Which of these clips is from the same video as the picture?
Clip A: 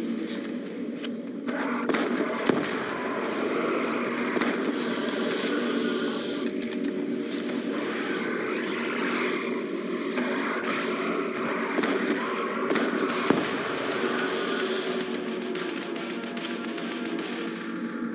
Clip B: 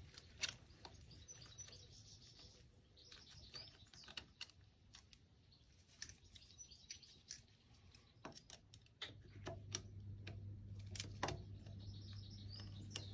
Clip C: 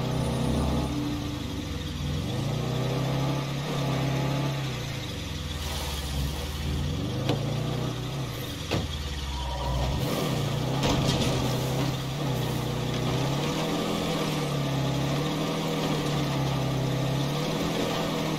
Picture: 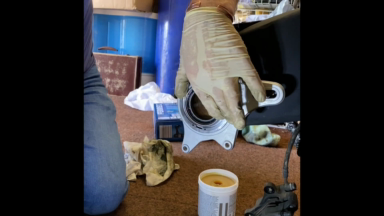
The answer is B